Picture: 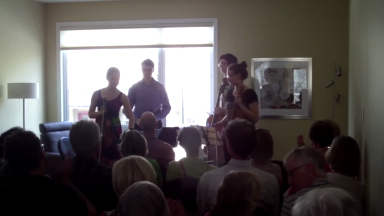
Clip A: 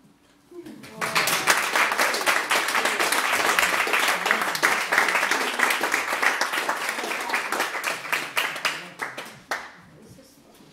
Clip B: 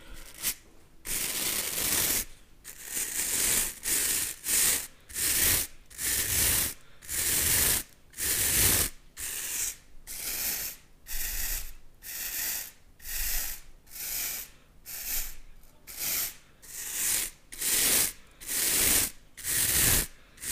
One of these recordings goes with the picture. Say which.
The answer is A